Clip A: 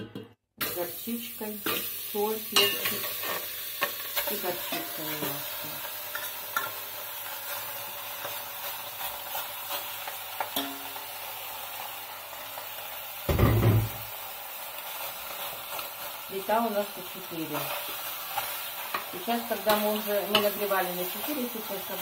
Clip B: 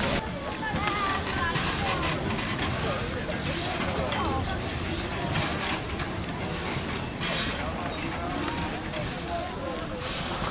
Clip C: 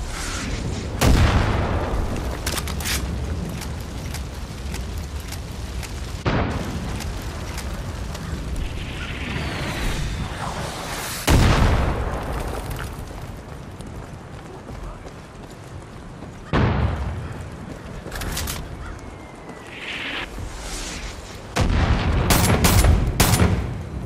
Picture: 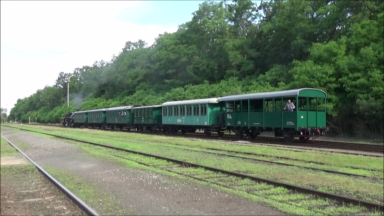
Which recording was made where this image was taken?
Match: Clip B